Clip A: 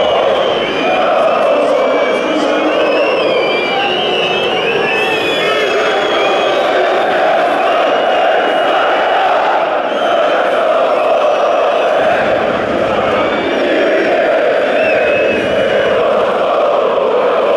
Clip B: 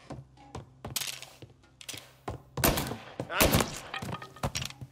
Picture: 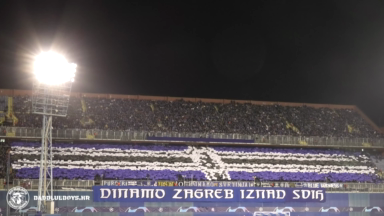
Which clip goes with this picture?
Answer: A